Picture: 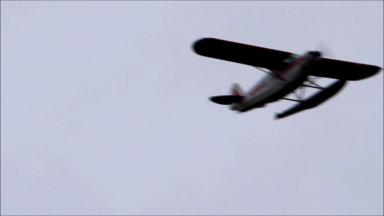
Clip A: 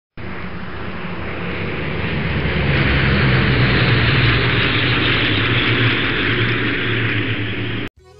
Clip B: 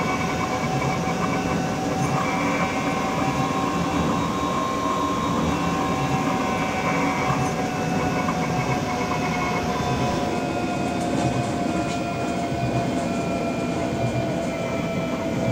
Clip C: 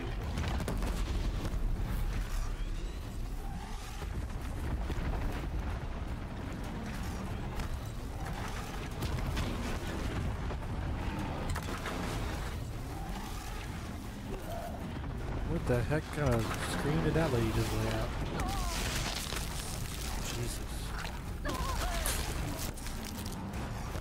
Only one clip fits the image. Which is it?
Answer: A